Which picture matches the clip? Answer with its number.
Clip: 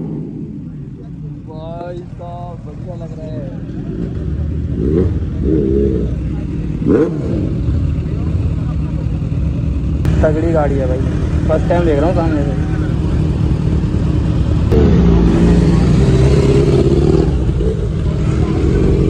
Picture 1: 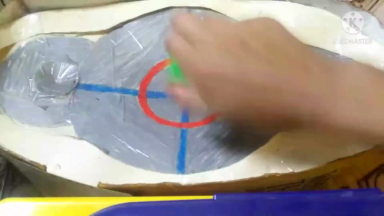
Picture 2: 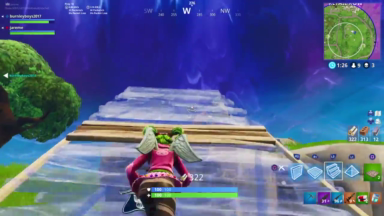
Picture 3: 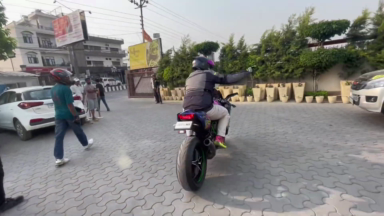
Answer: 3